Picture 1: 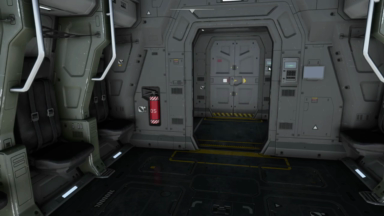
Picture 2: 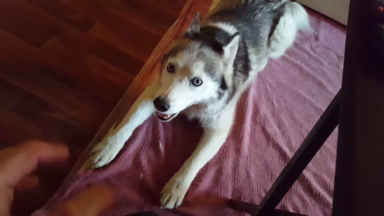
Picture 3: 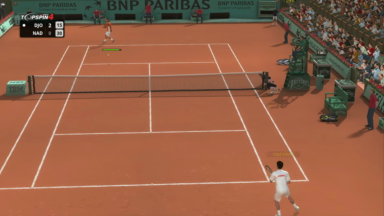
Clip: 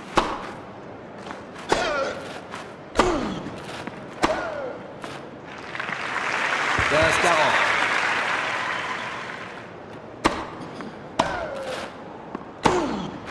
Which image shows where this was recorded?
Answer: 3